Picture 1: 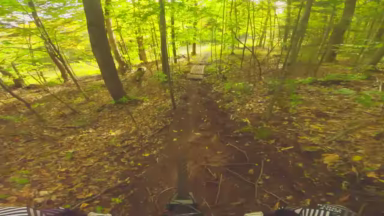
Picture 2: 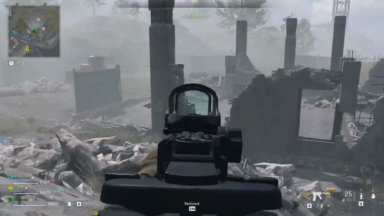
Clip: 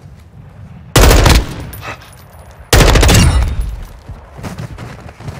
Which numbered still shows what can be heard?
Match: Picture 2